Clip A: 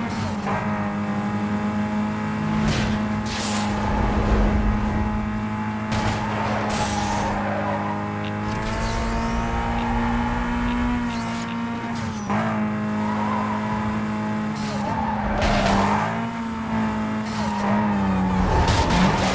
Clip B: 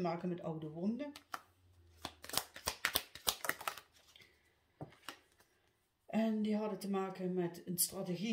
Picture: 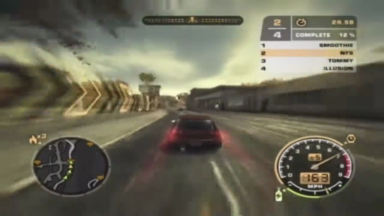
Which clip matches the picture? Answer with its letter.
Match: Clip A